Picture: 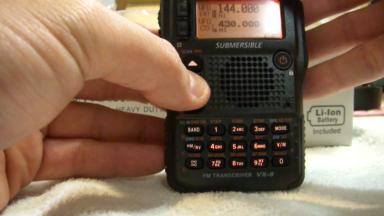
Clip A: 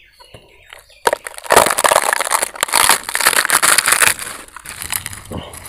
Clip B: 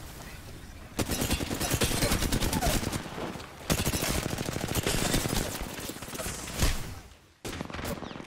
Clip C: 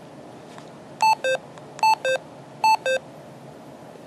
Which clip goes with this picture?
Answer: C